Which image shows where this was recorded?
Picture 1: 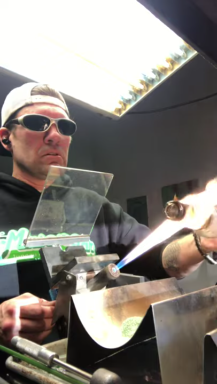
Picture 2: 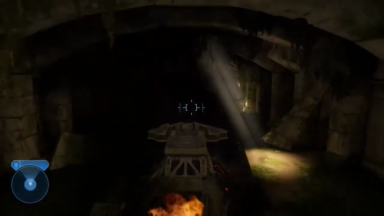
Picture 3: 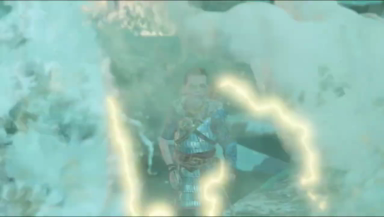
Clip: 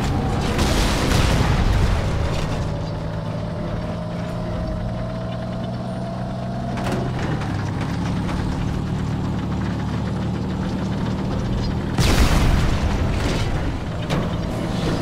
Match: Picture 2